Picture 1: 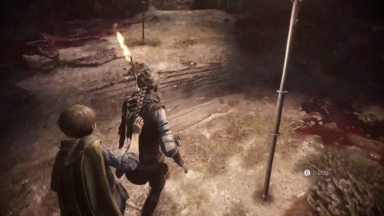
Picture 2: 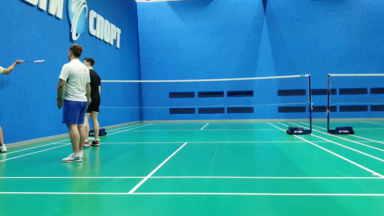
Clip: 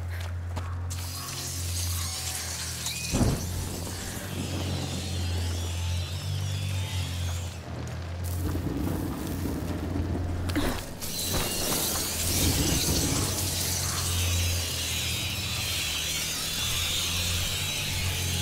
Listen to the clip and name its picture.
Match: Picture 1